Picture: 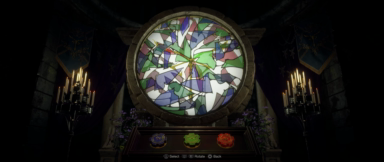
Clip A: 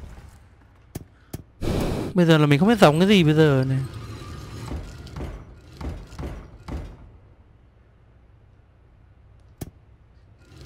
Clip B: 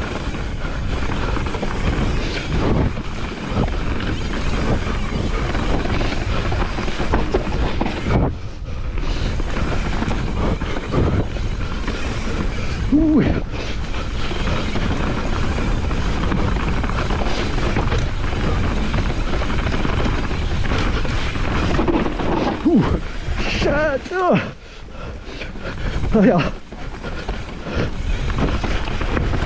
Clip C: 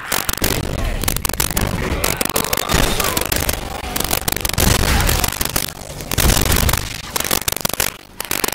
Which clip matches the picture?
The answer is A